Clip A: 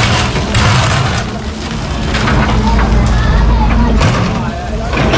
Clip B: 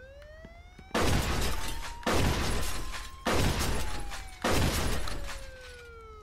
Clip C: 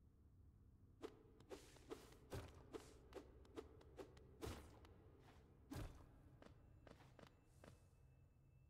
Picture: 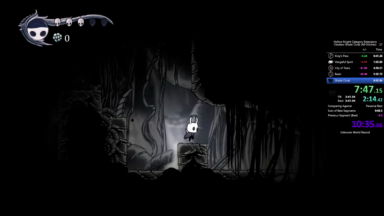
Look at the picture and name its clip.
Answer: C